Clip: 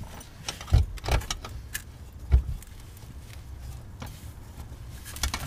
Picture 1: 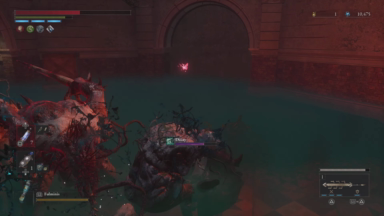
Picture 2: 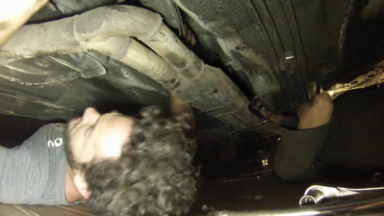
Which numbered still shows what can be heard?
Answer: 2